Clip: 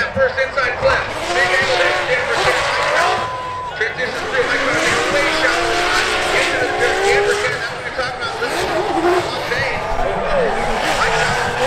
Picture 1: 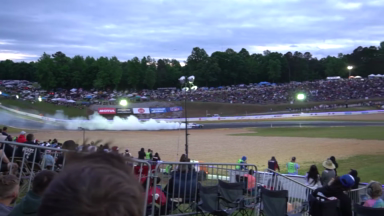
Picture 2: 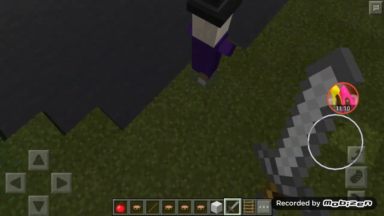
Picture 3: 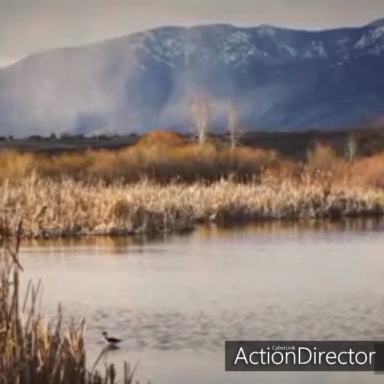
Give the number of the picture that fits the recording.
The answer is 1